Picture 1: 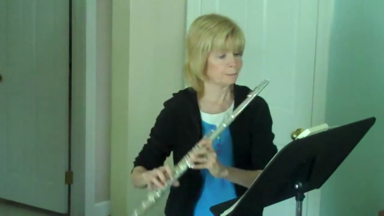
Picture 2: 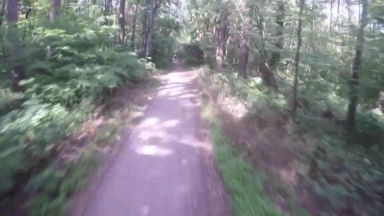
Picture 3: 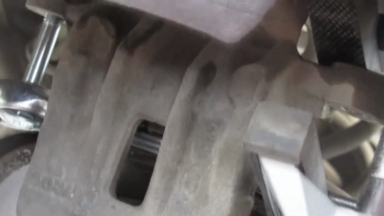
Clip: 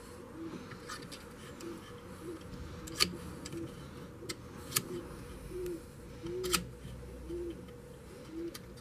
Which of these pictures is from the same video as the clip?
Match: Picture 3